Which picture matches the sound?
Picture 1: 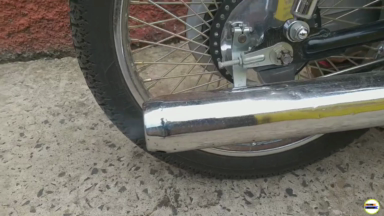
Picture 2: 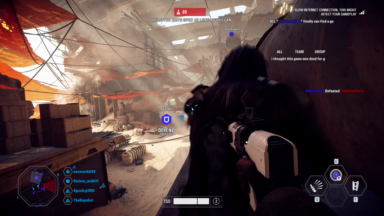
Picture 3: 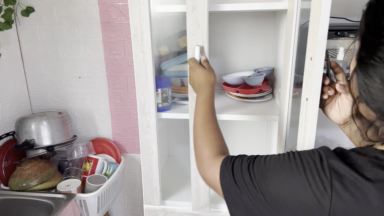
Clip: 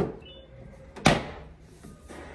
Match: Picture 3